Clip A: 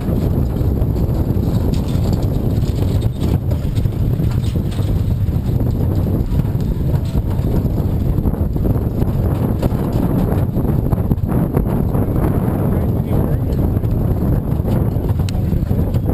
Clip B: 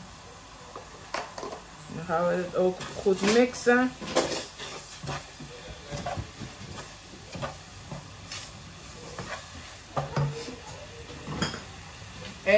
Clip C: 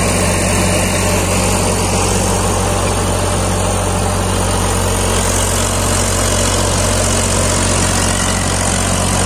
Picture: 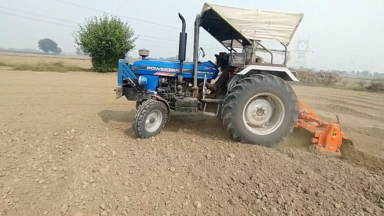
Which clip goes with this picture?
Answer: C